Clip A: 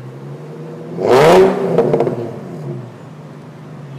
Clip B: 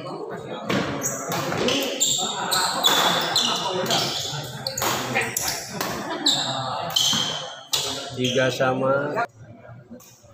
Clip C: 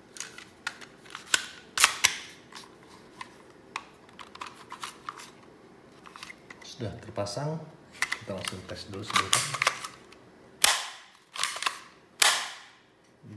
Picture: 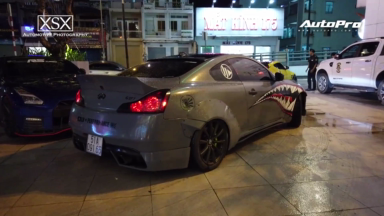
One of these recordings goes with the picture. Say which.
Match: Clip A